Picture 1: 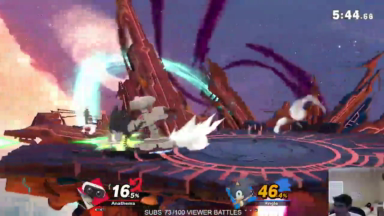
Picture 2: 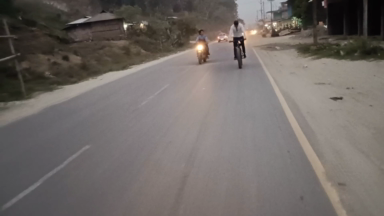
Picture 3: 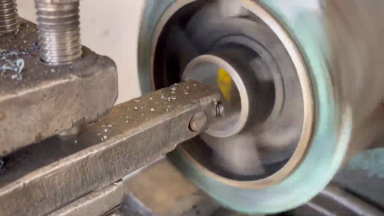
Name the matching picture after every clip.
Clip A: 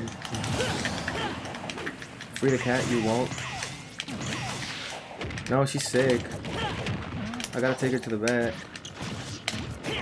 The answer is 1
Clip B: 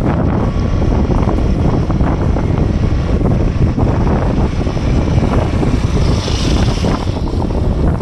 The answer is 2